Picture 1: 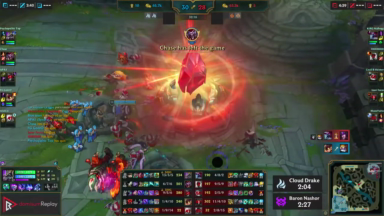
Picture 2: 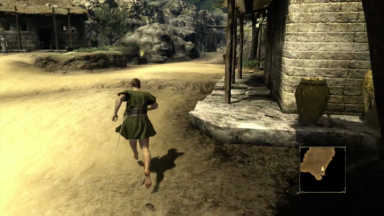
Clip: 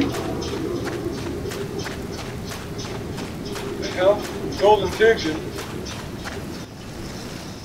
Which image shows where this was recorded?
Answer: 2